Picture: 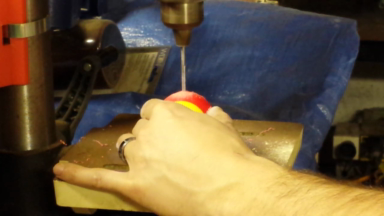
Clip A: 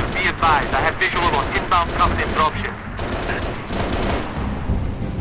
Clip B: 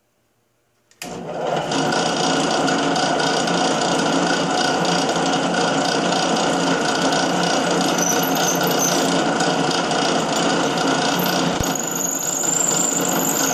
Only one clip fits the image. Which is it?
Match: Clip B